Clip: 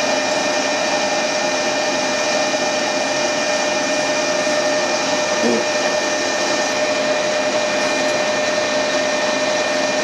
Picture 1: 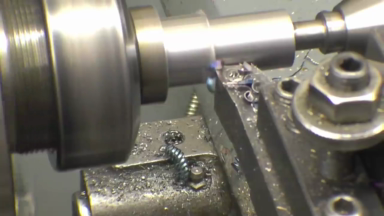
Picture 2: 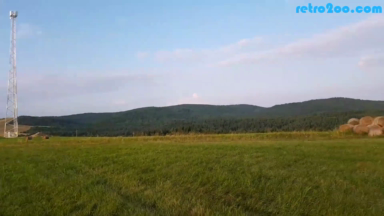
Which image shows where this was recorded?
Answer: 1